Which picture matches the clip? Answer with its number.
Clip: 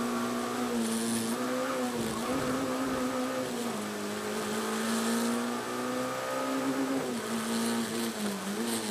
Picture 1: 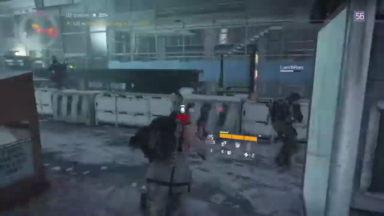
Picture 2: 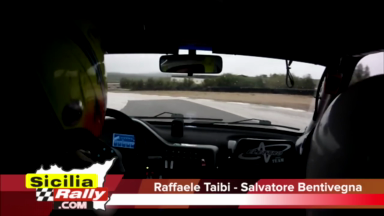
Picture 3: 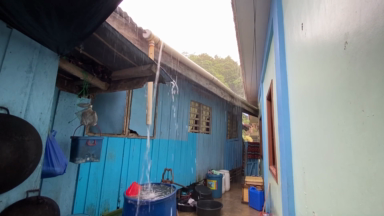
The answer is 2